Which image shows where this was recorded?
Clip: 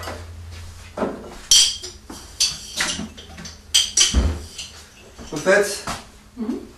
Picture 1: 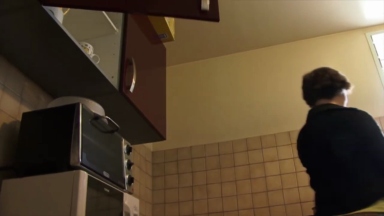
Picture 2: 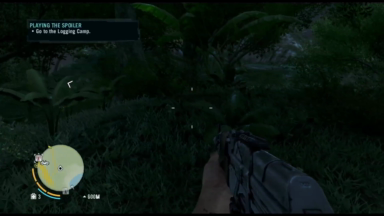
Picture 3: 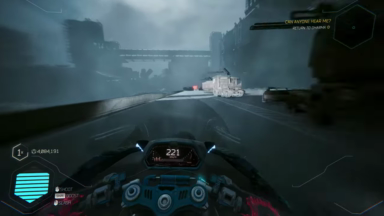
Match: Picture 1